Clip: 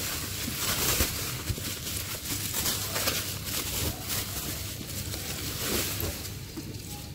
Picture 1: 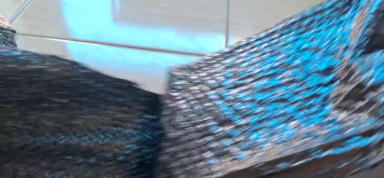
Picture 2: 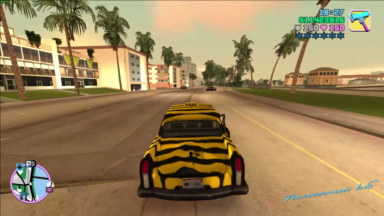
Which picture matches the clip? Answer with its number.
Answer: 1